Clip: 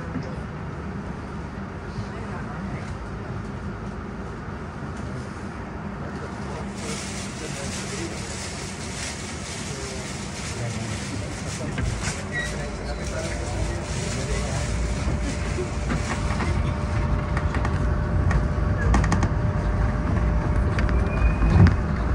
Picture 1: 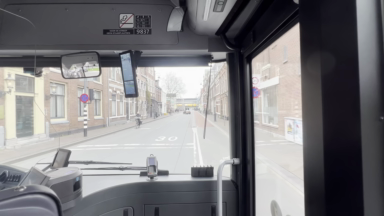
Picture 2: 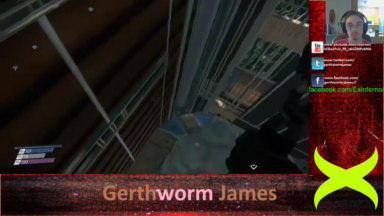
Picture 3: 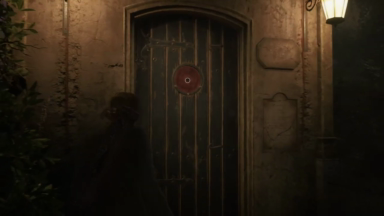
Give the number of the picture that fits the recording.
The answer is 1